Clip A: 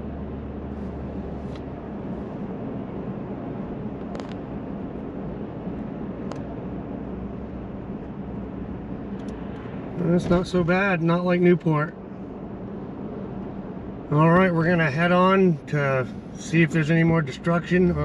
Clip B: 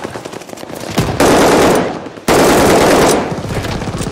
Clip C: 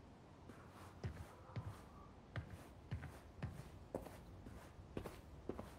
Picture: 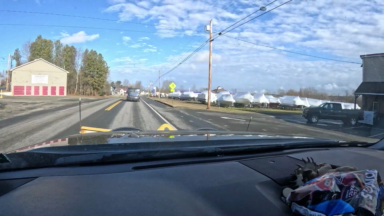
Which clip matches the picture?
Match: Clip A